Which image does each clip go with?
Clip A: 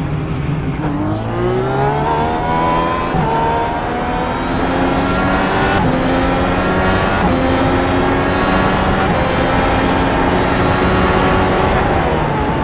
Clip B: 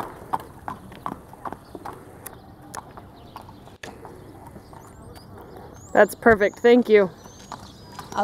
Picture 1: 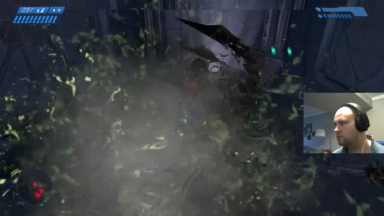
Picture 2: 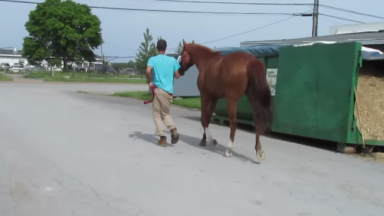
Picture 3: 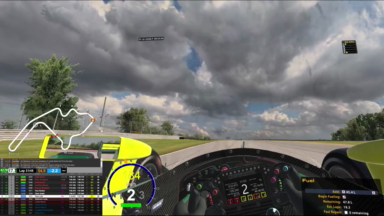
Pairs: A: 3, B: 2